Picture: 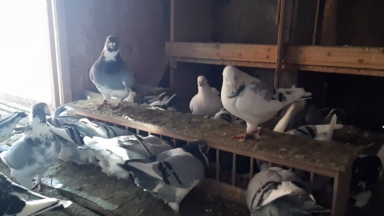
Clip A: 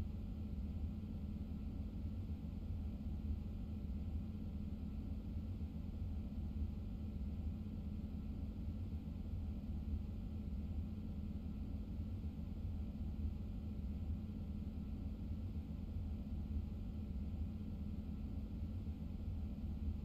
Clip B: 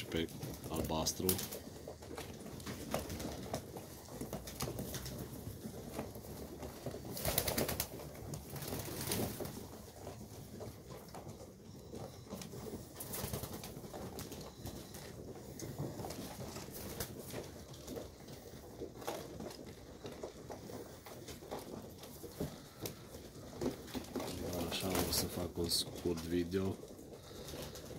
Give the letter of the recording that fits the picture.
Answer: B